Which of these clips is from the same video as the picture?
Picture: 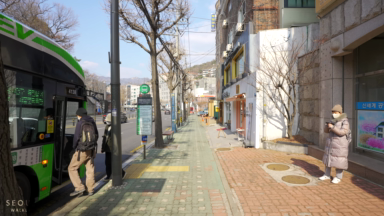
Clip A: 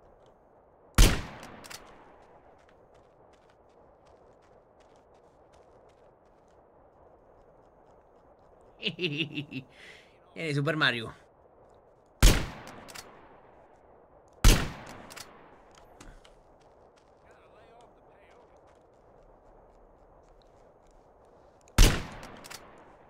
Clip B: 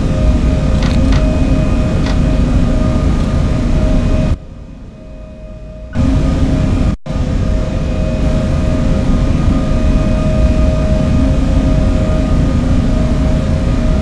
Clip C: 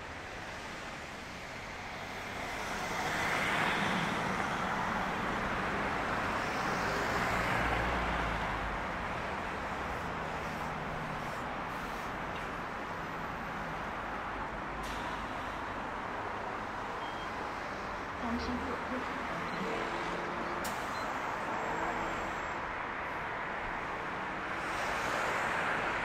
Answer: C